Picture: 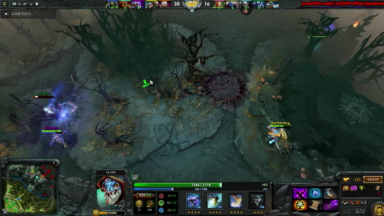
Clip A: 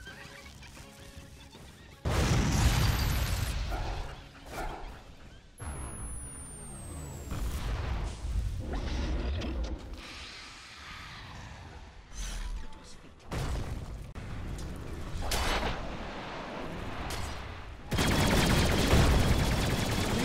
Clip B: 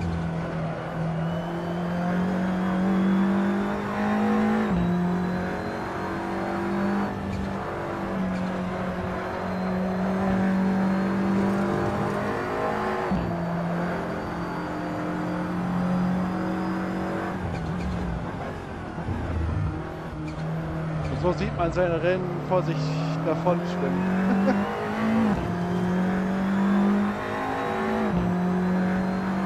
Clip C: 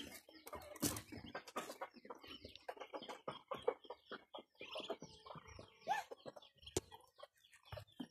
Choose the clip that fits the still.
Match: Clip A